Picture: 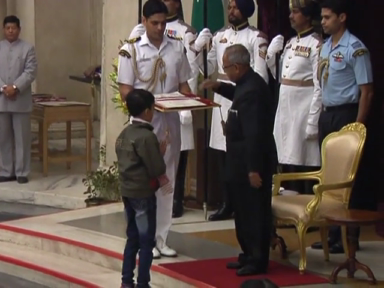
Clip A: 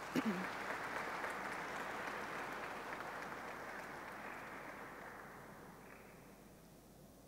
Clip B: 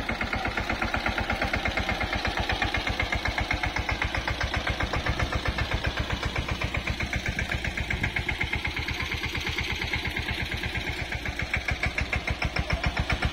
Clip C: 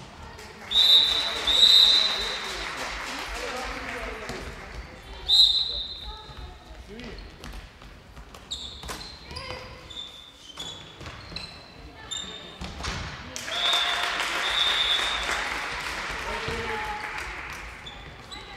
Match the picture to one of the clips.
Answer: A